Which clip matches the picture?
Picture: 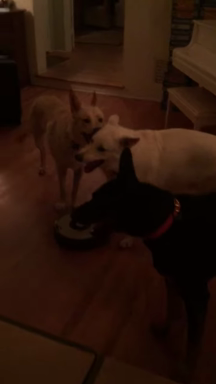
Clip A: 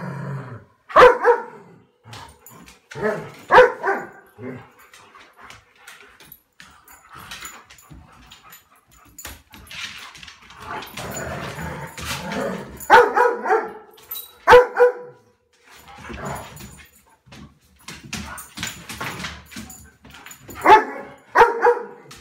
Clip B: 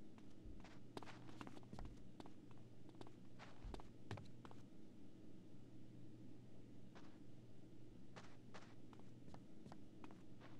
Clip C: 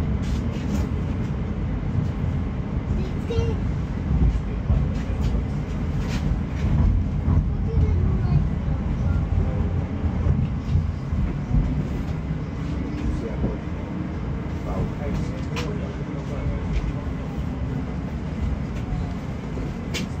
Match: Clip A